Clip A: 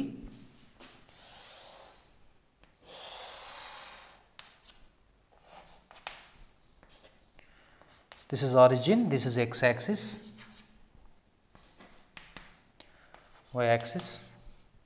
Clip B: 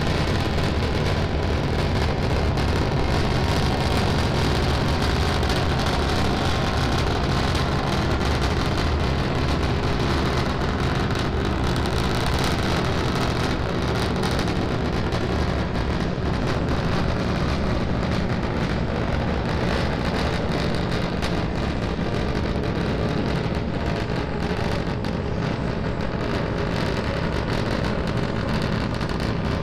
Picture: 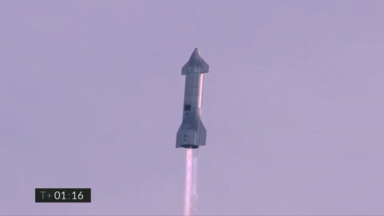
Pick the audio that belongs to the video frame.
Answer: B